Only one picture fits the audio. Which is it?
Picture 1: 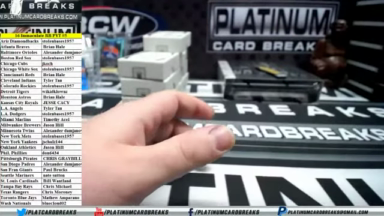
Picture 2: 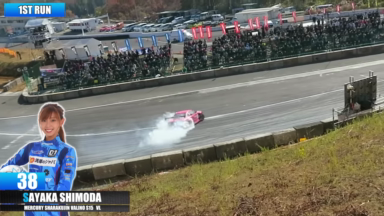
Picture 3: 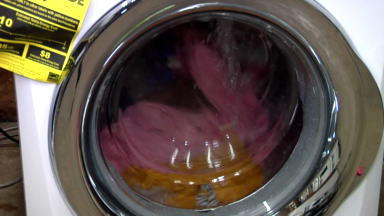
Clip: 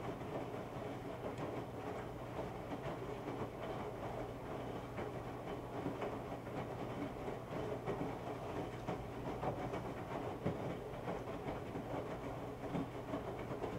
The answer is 3